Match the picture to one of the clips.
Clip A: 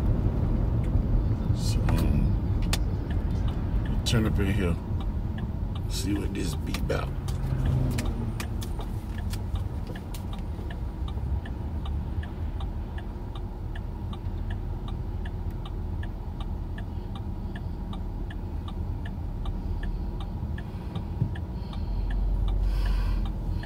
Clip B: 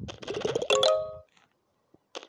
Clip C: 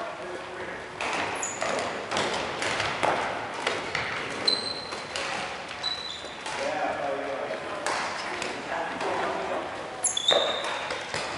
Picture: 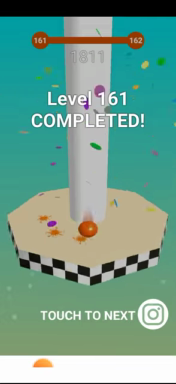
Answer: B